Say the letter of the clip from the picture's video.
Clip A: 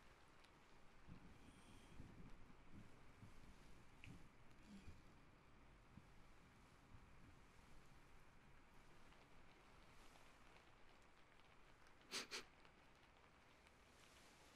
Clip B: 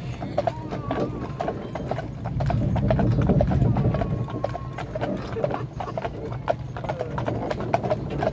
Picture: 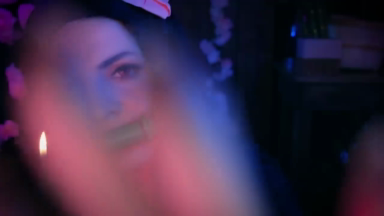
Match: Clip A